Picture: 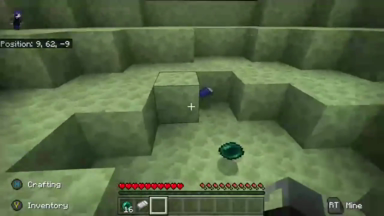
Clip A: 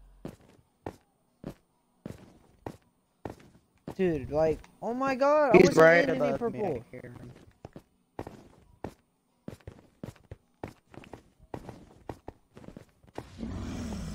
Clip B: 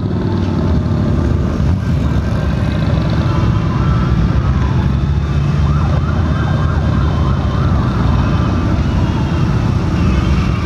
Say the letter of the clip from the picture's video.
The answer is A